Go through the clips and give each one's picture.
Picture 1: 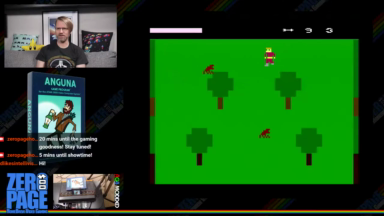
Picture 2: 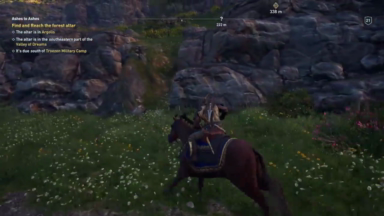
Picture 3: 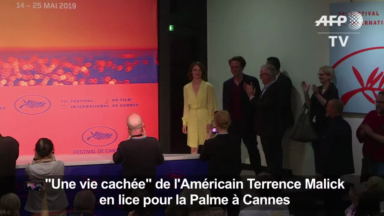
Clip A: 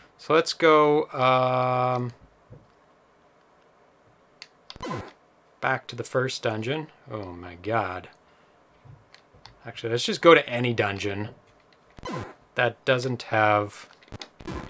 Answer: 1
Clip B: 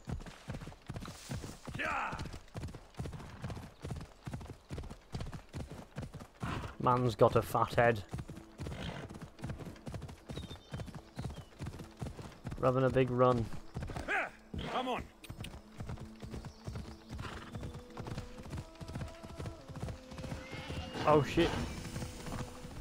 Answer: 2